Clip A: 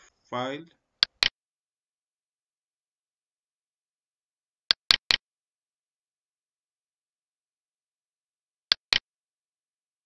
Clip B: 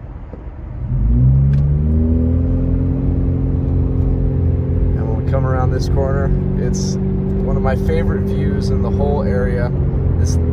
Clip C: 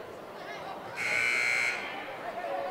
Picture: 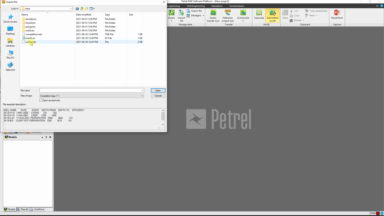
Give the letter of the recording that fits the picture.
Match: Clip A